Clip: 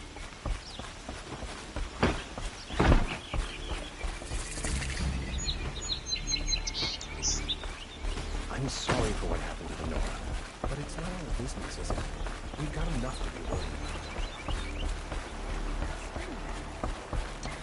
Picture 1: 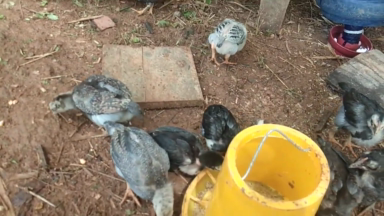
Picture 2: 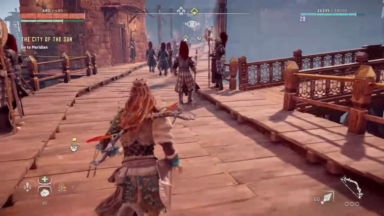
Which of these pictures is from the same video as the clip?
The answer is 2